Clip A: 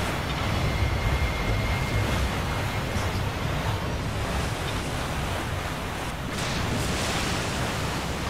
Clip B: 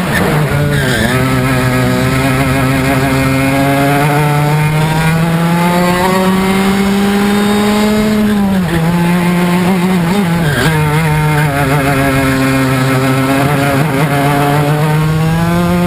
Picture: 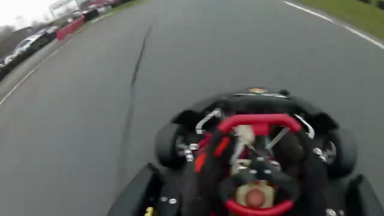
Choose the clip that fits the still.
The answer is B